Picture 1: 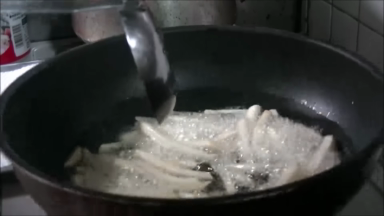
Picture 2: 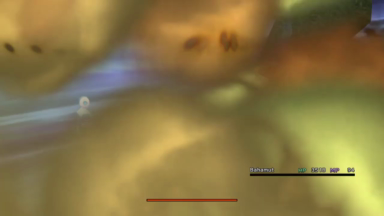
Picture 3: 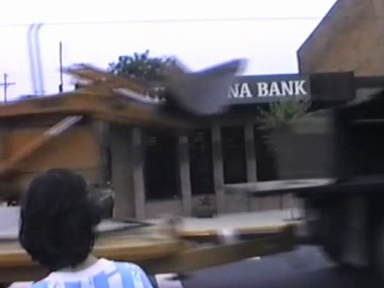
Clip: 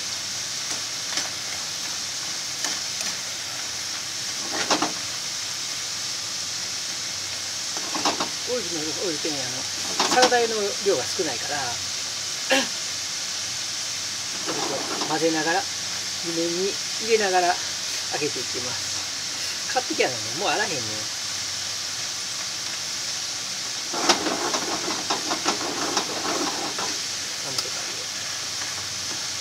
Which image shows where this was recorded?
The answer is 1